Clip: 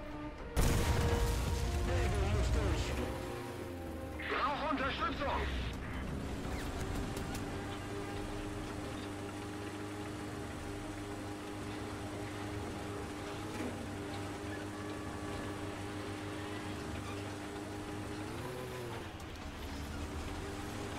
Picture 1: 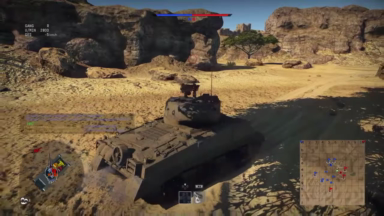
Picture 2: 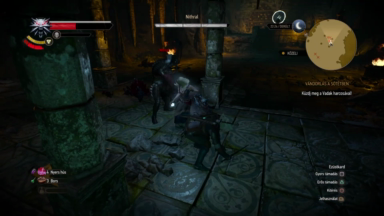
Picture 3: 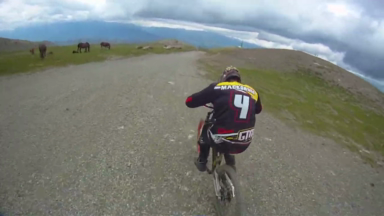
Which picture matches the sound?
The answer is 1